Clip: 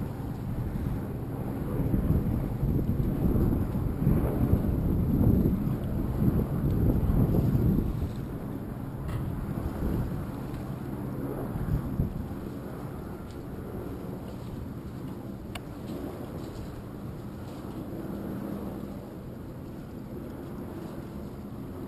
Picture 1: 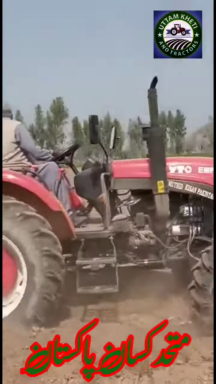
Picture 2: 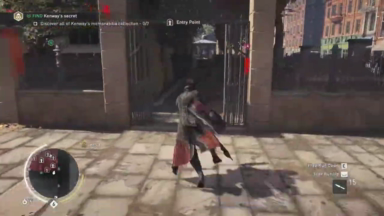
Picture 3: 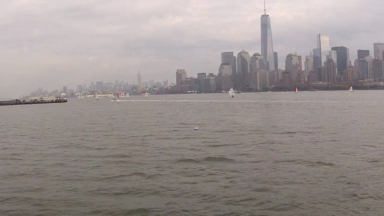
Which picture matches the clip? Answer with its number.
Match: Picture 3